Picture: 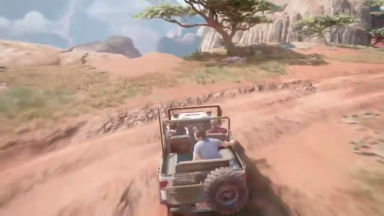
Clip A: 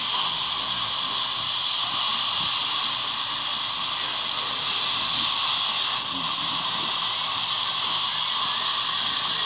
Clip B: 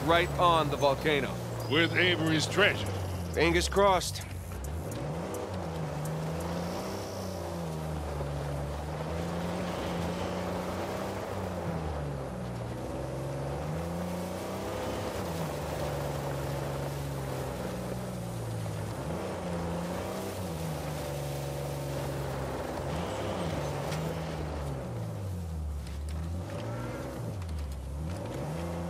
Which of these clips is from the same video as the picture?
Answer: B